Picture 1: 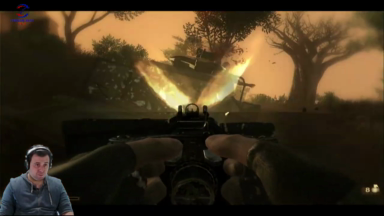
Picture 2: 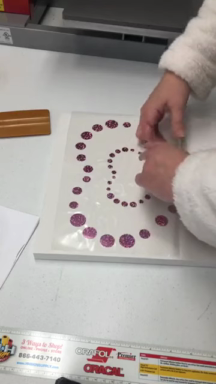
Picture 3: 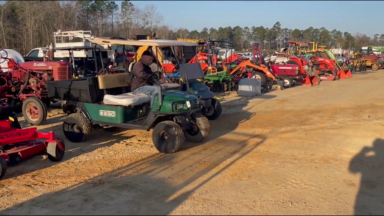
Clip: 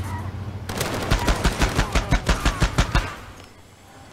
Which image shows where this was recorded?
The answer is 1